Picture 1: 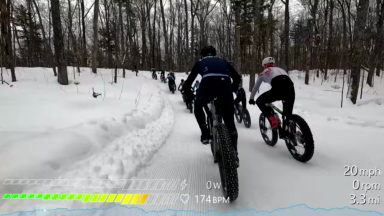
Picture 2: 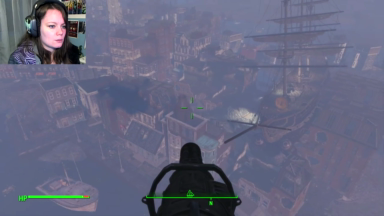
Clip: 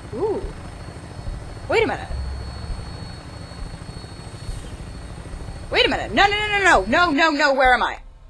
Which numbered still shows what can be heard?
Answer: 2